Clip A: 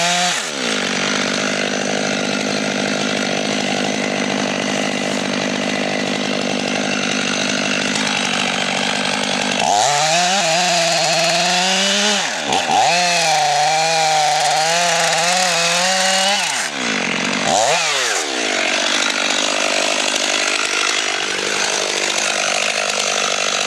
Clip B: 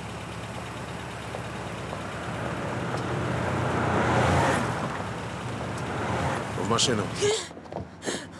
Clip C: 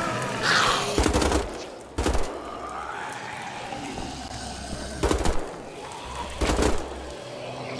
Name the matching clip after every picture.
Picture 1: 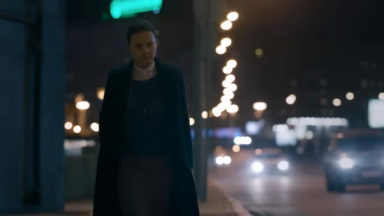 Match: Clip B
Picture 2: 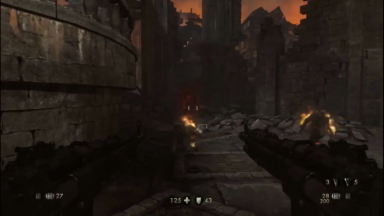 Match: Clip C